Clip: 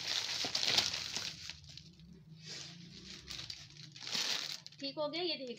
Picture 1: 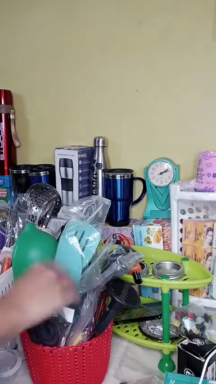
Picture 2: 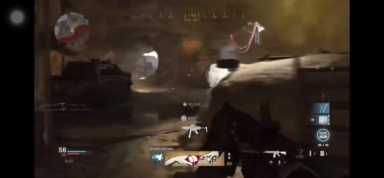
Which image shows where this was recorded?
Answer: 1